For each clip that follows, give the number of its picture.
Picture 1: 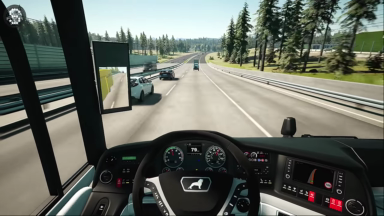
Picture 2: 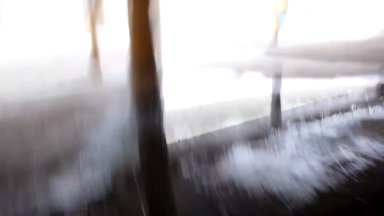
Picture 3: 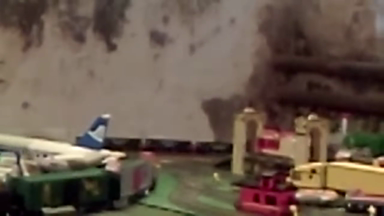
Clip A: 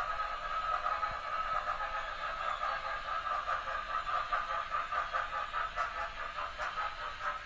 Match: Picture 3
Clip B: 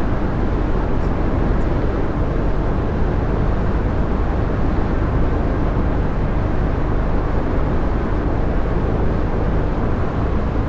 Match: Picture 1